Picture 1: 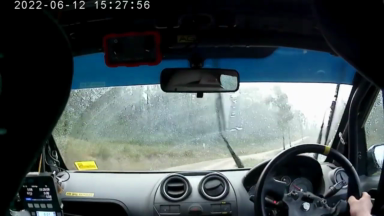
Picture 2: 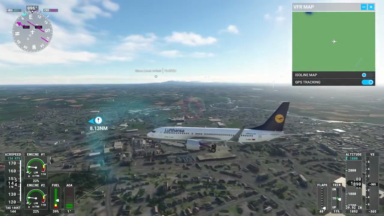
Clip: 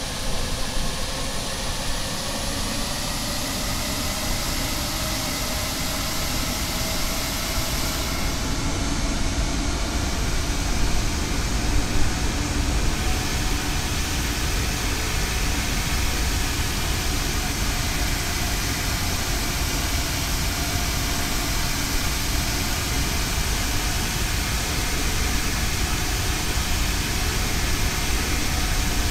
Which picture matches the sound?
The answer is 2